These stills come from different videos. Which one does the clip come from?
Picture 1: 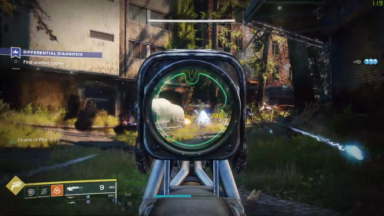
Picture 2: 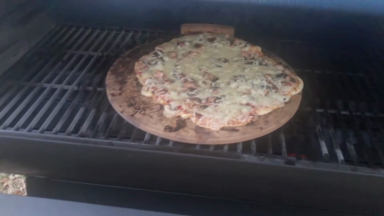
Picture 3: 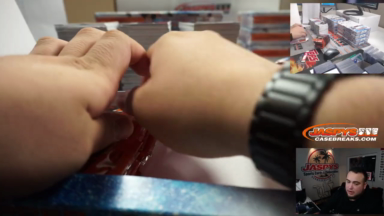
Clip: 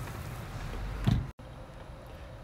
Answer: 2